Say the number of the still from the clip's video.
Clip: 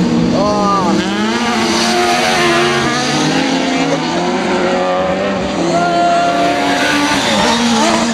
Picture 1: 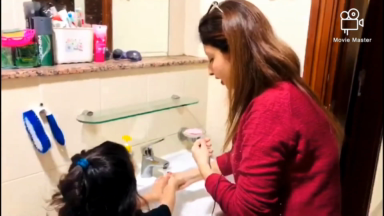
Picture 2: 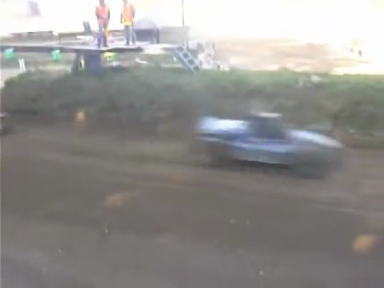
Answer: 2